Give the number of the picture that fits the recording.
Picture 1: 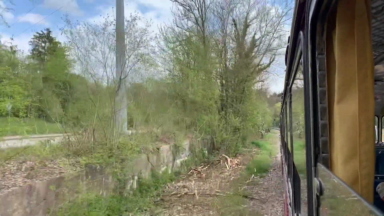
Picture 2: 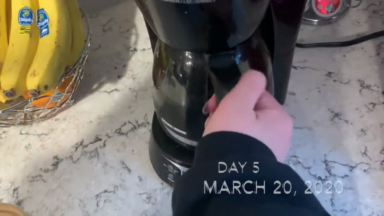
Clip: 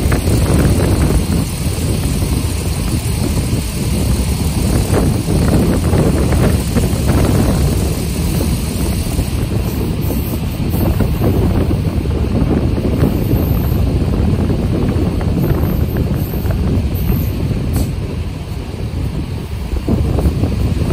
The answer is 1